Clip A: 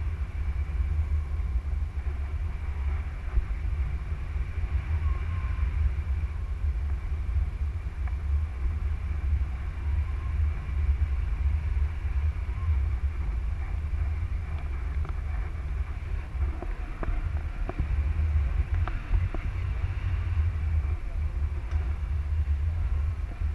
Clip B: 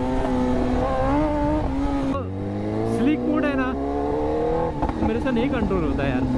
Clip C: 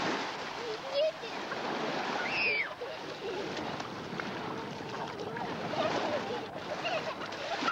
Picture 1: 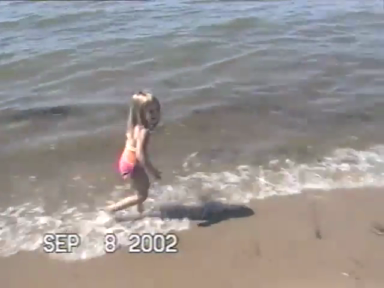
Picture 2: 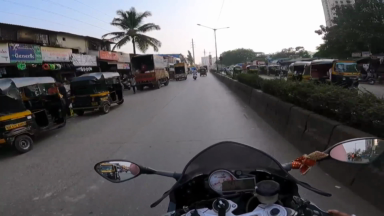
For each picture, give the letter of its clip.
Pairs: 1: C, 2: B